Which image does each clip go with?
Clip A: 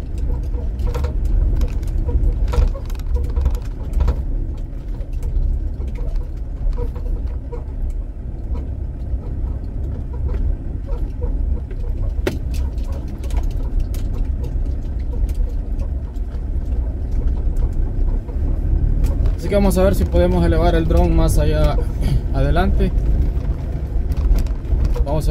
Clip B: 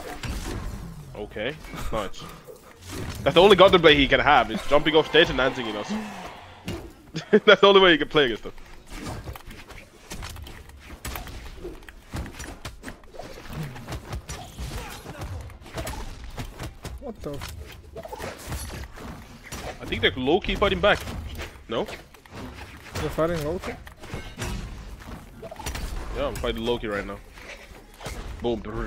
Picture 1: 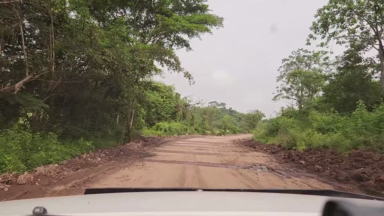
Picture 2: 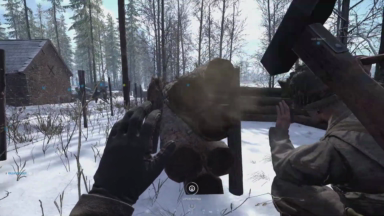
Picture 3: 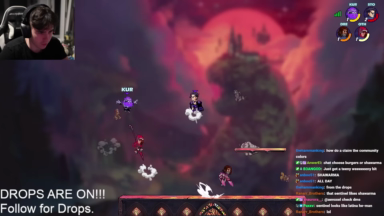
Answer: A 1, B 3